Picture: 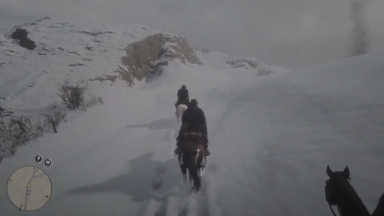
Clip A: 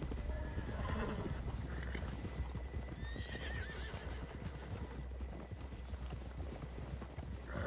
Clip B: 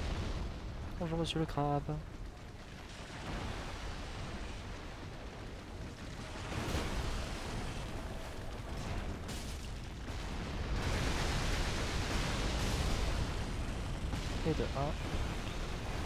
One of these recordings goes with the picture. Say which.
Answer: A